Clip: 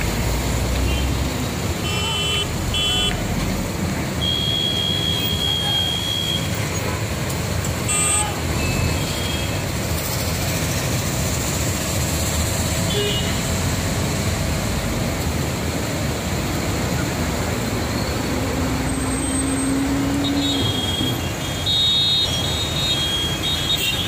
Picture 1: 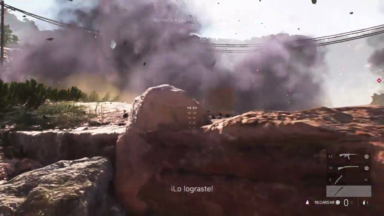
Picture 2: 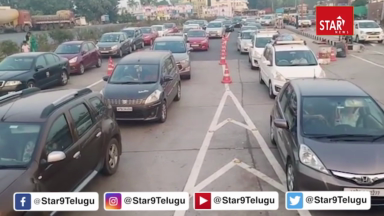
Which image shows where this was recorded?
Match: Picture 2